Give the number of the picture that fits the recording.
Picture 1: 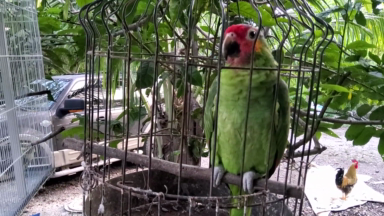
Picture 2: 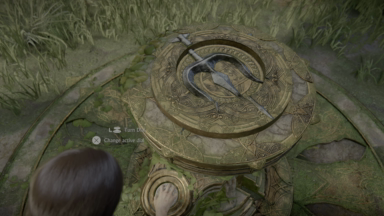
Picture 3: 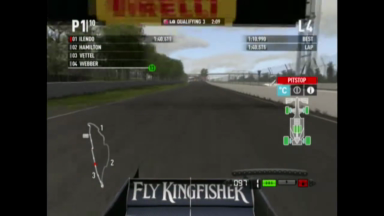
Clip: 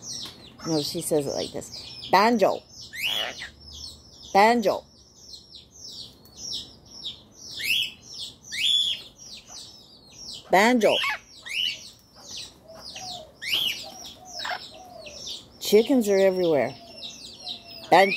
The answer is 1